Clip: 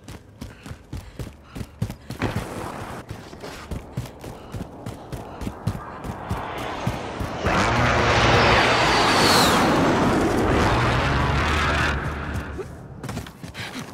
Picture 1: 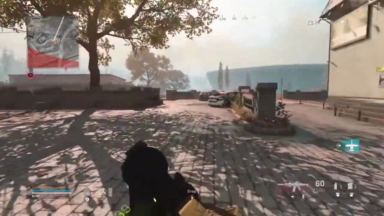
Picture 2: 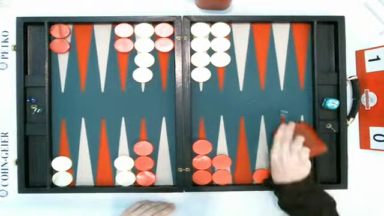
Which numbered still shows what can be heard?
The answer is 1